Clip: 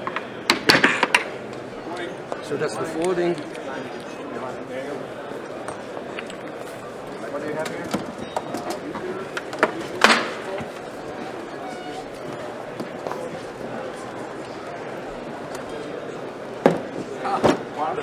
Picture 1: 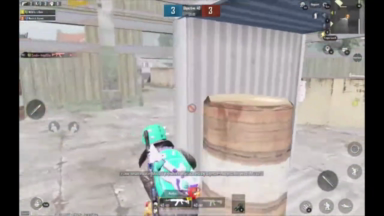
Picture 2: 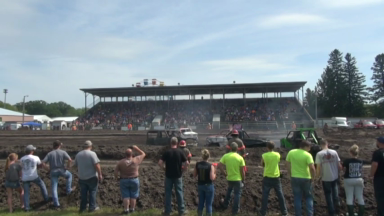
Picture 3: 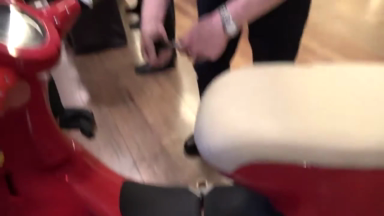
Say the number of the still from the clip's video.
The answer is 3